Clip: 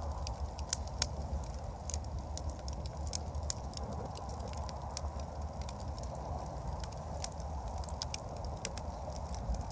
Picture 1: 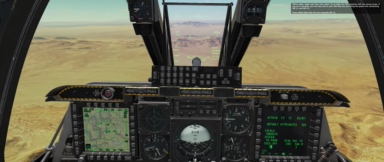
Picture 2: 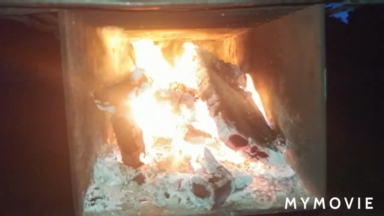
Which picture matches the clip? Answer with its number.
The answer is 2